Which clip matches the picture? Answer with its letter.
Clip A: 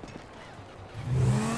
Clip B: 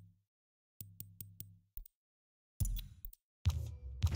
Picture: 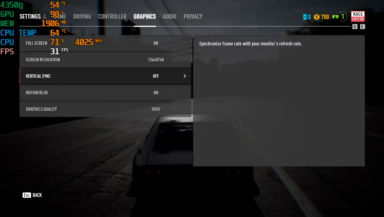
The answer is B